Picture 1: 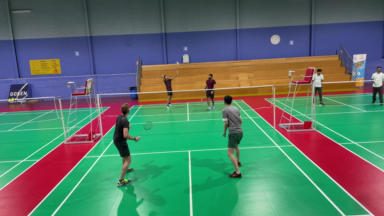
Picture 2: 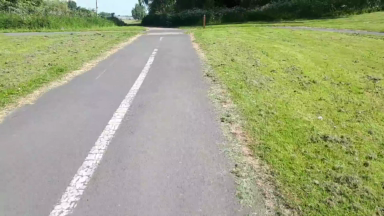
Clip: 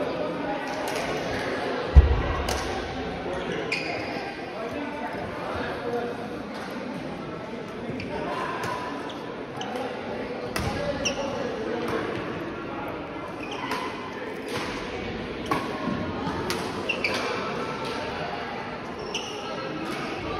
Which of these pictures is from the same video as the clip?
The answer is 1